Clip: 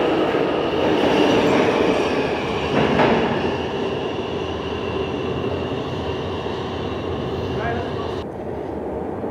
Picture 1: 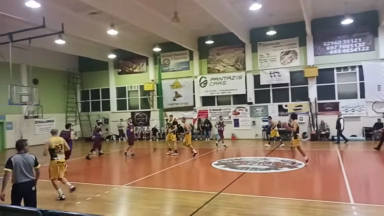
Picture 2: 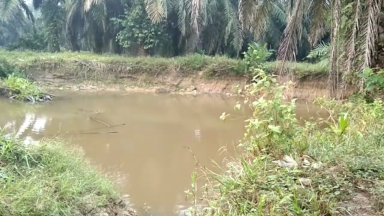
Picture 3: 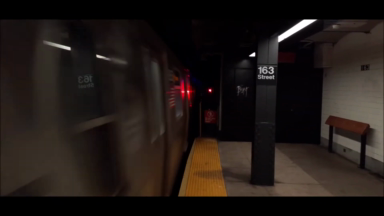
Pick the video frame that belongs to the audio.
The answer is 3